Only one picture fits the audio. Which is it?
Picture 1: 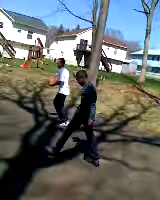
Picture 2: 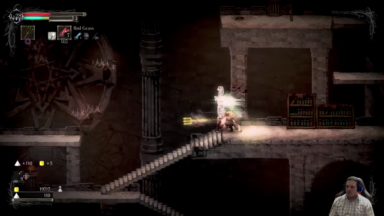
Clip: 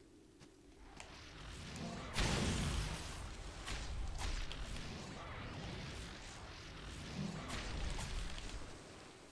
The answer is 2